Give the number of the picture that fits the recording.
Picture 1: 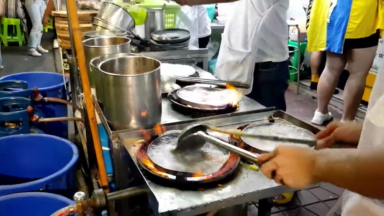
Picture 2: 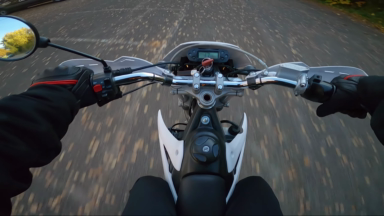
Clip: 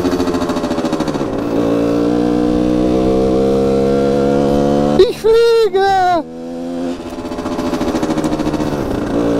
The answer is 2